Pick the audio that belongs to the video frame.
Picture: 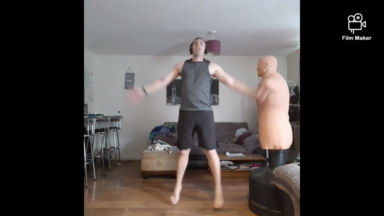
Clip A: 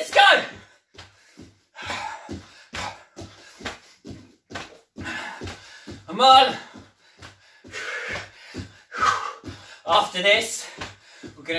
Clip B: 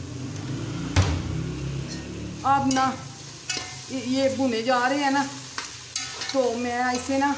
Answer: A